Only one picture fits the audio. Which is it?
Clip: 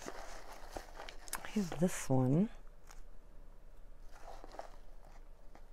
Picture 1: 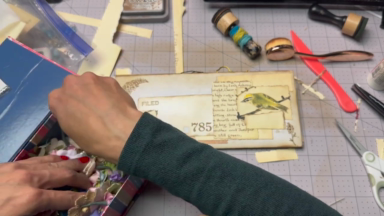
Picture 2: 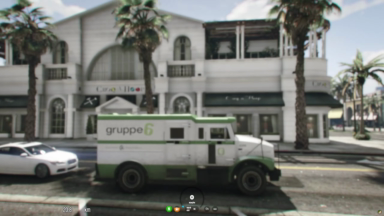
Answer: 1